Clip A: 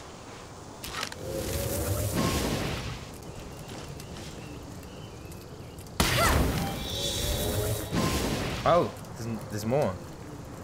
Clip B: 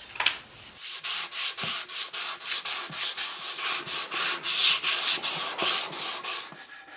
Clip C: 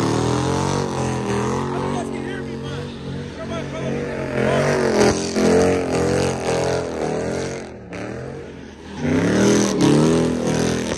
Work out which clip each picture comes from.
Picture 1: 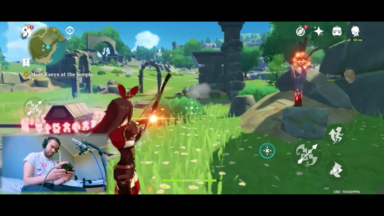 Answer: A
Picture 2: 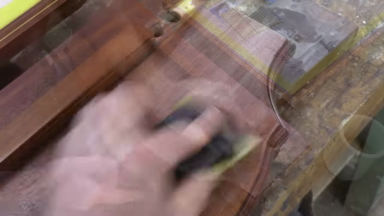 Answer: B